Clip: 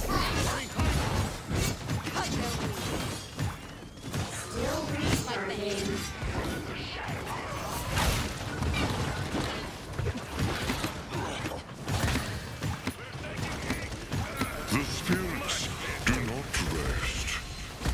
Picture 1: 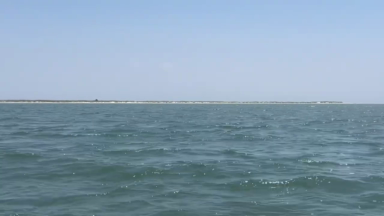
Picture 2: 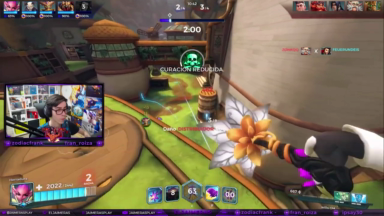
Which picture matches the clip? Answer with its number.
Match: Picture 2